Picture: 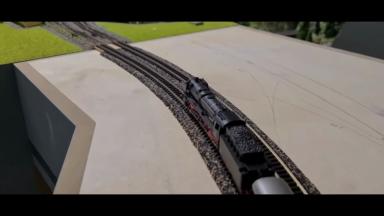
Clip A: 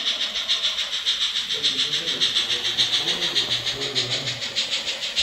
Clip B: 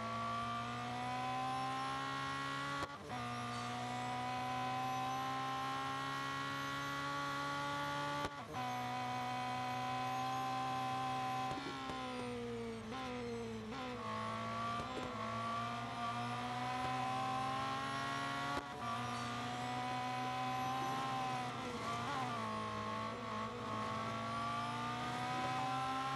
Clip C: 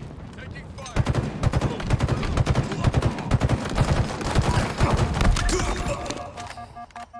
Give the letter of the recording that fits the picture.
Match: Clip A